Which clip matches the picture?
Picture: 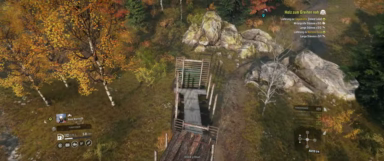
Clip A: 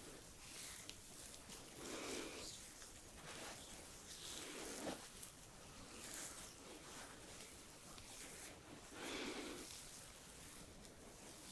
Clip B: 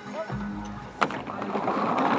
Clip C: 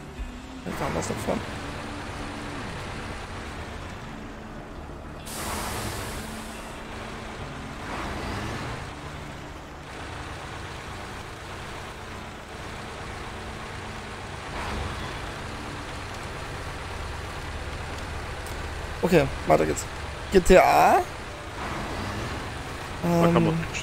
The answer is C